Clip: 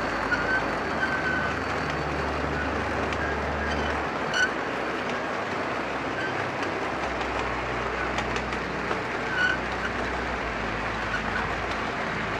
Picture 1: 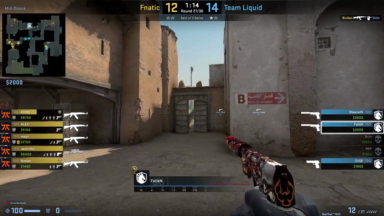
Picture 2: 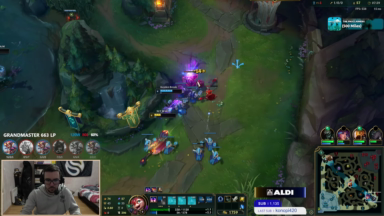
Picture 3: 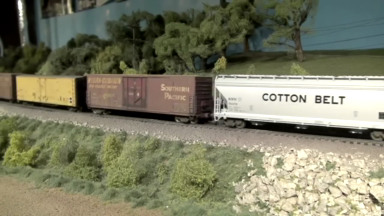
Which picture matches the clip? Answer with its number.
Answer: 3